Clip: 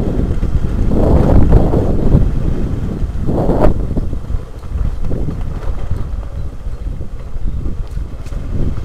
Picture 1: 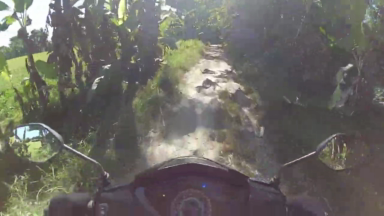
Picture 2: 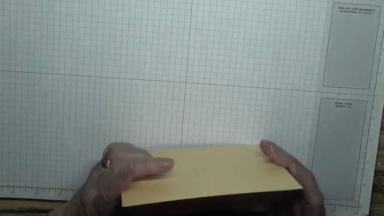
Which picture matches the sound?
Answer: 1